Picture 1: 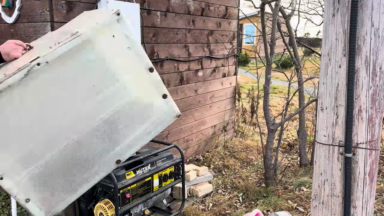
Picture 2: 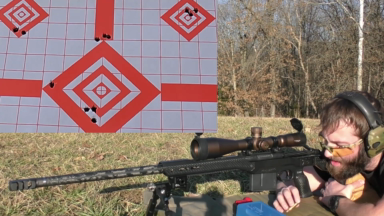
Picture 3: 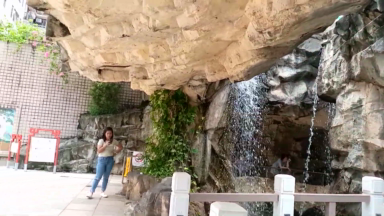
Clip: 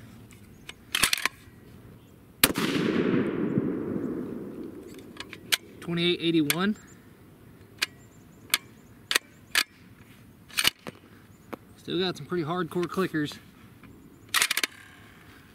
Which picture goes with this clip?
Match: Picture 2